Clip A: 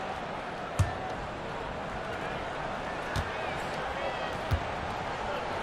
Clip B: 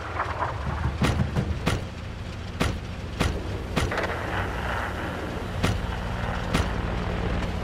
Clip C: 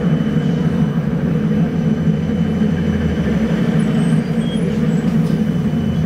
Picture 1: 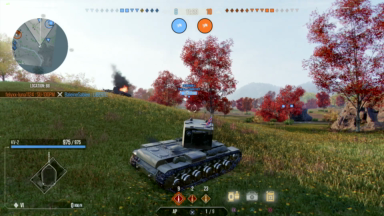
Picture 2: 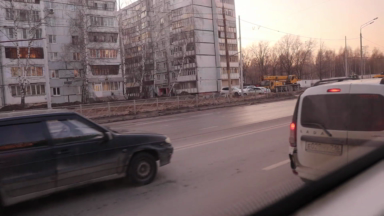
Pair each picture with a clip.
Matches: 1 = B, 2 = C